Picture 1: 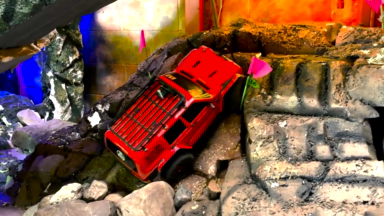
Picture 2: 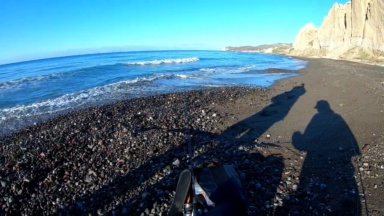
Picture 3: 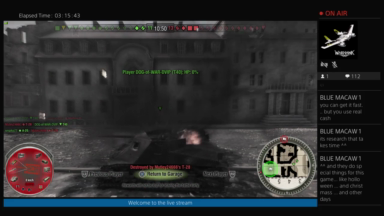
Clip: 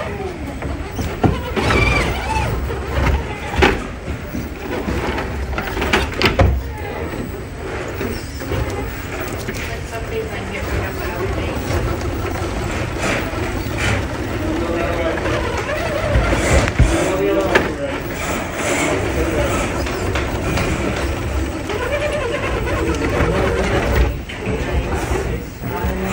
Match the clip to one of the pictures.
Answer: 1